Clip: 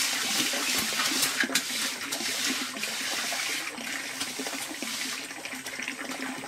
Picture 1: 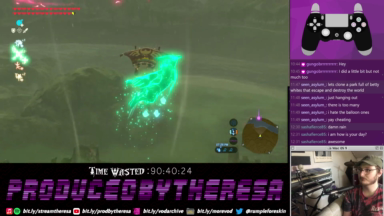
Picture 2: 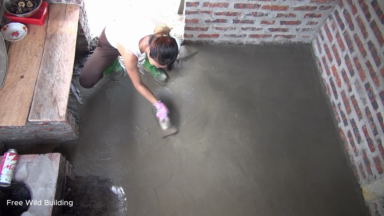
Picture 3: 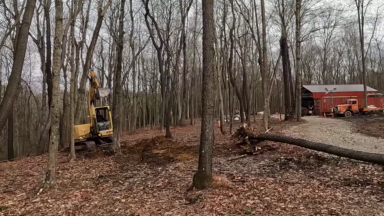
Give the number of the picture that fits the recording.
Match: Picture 2